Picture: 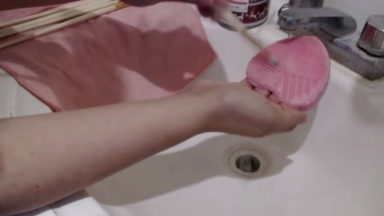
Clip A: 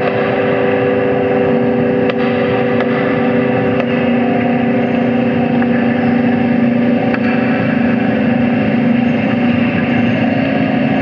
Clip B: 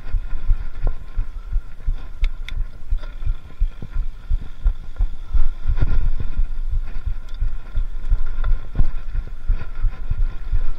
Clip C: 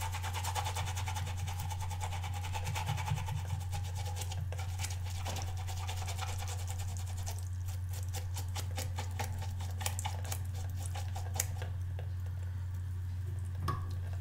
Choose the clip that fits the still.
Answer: C